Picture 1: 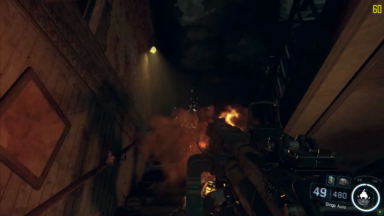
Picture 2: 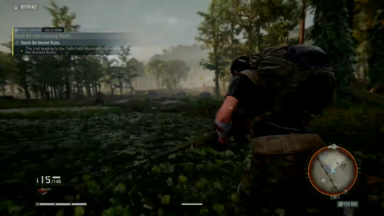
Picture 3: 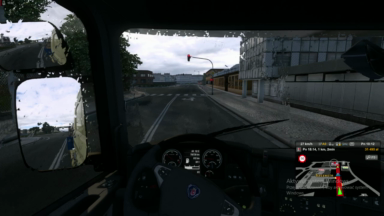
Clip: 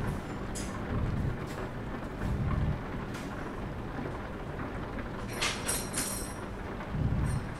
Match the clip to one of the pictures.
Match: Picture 3